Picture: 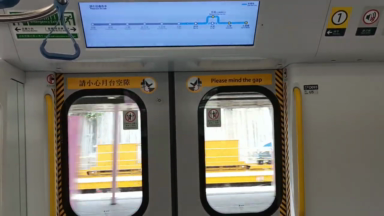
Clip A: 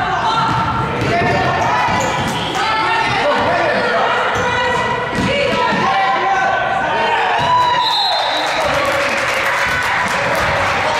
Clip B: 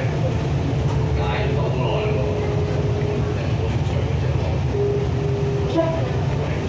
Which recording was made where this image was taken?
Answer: B